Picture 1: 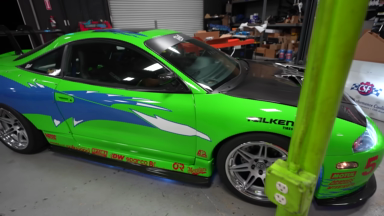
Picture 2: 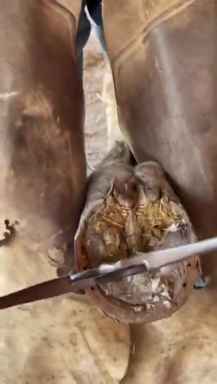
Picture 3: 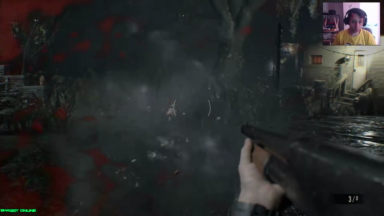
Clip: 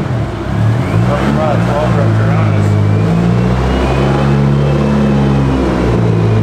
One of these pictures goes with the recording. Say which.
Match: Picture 1